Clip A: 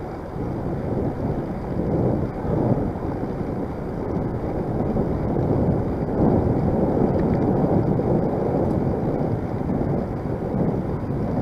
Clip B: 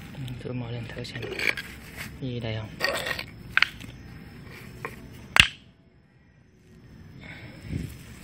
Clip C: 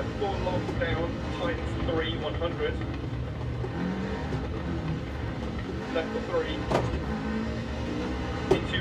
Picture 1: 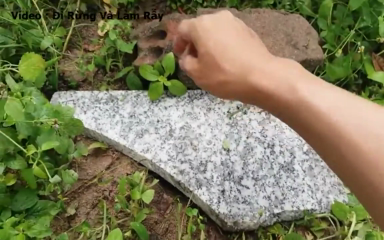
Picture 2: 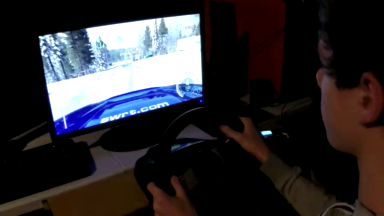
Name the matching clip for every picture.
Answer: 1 B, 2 C